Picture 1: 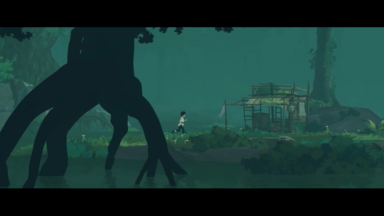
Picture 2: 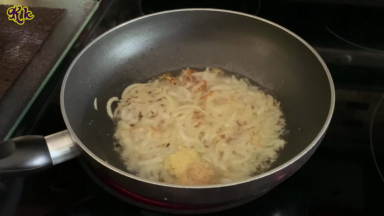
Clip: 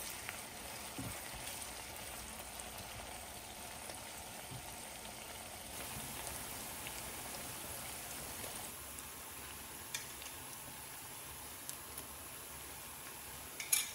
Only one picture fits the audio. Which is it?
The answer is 2